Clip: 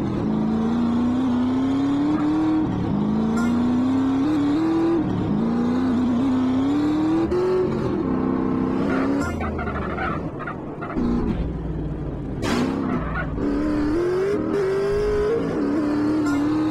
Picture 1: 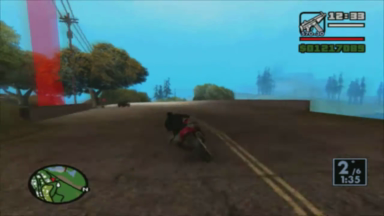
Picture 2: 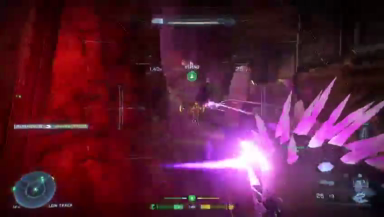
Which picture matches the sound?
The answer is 1